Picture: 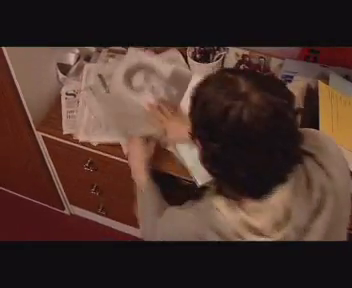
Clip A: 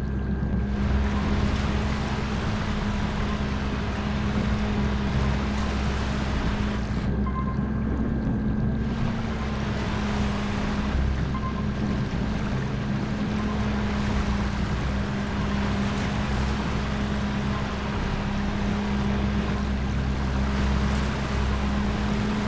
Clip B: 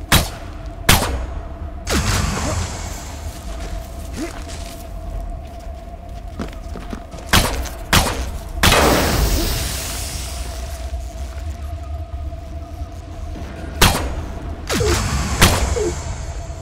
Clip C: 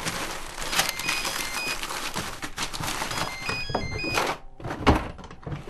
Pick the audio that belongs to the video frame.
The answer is C